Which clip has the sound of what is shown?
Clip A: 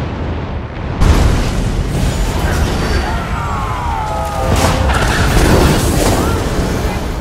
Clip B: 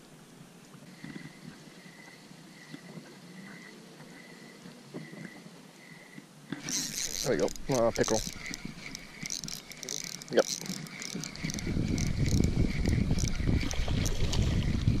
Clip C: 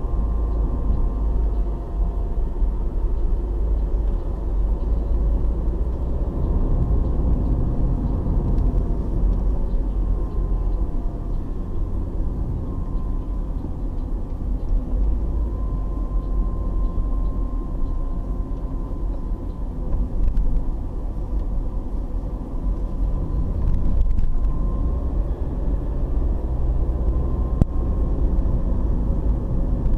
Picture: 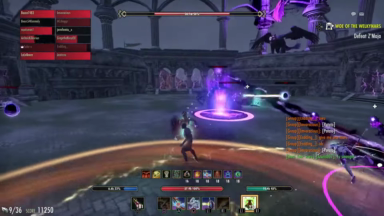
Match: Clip A